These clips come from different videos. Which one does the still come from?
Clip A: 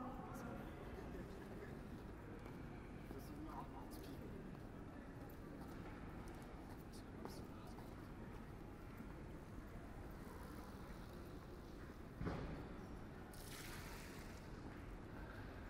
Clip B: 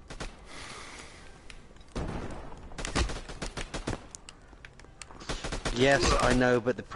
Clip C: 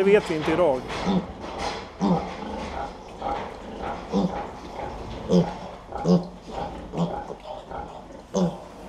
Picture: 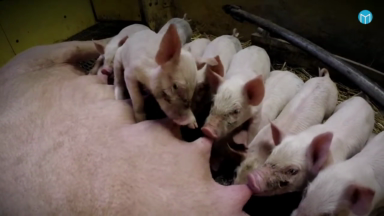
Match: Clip C